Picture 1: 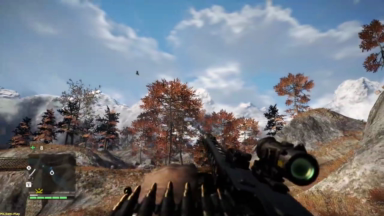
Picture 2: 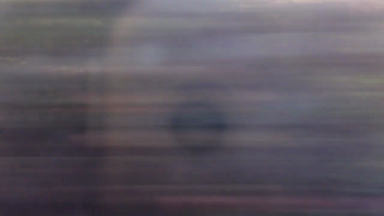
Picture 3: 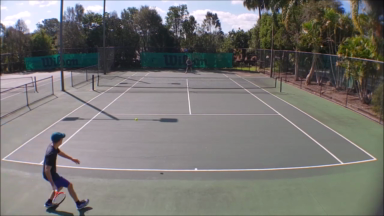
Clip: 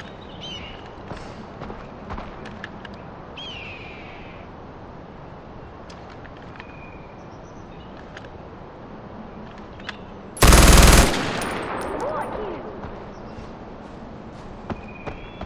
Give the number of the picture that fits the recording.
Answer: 1